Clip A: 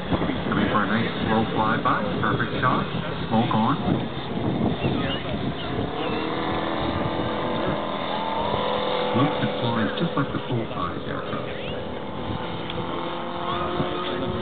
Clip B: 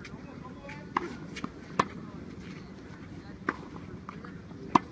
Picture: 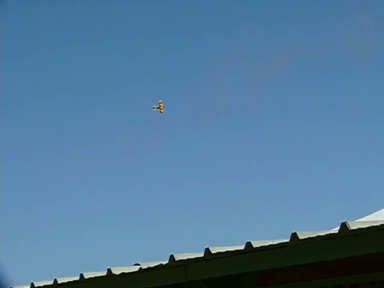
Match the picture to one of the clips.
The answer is A